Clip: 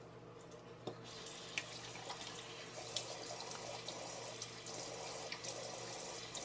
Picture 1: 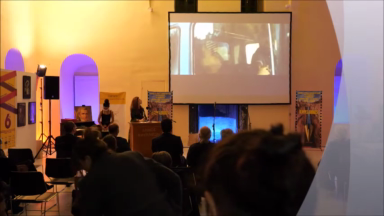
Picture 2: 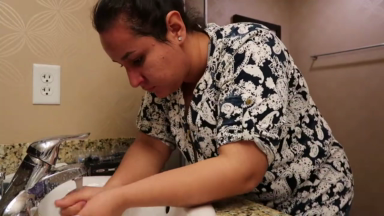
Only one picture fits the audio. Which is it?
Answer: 2